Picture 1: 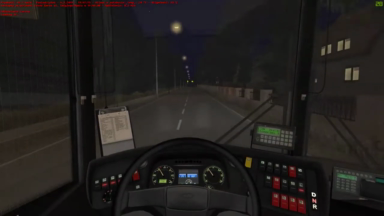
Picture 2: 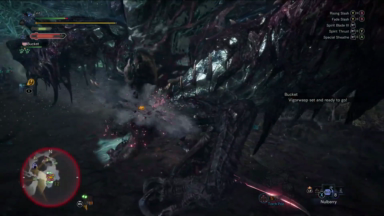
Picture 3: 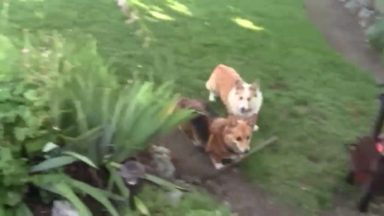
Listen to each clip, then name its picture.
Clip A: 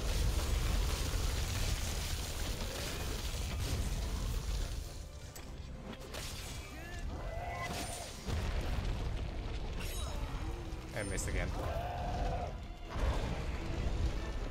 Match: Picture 2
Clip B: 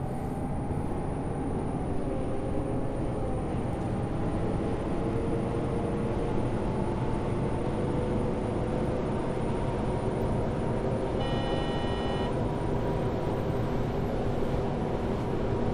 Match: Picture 1